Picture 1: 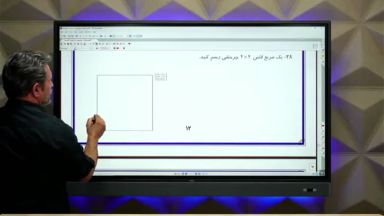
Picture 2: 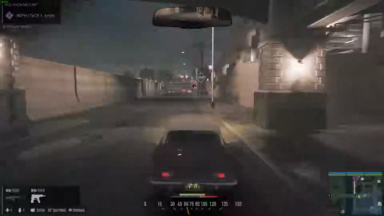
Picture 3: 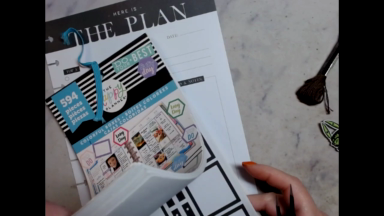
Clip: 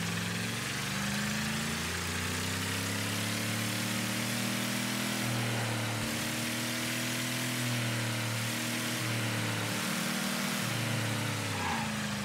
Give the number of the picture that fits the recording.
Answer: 2